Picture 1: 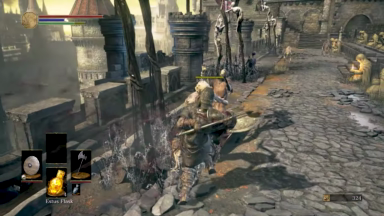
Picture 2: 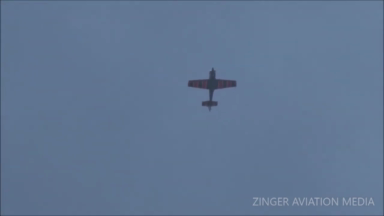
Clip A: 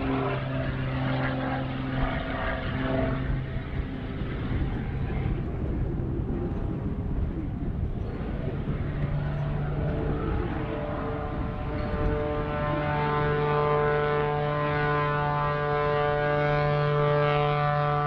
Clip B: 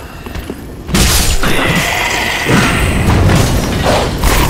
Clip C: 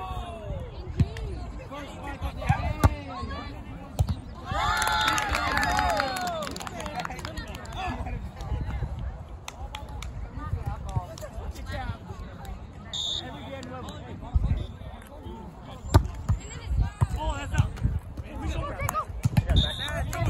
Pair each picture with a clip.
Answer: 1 B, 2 A